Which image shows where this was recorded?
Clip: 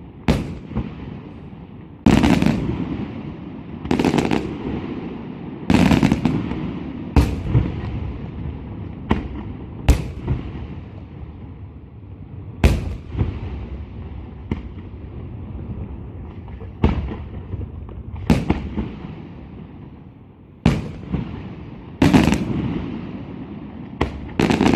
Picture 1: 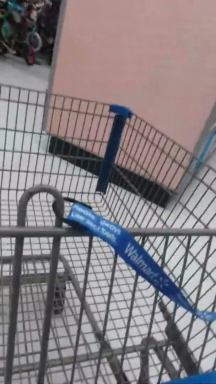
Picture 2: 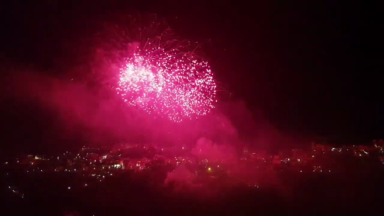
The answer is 2